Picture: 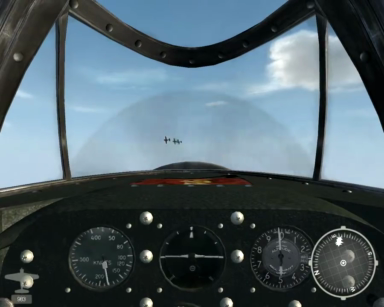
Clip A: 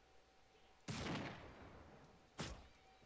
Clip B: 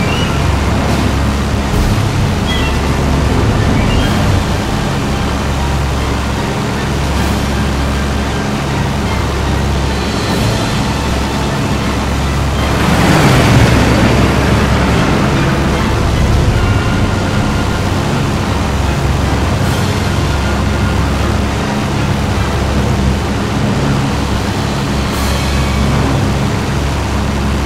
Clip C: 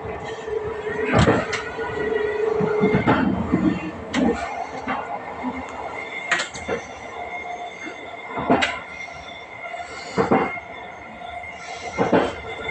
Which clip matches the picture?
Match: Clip B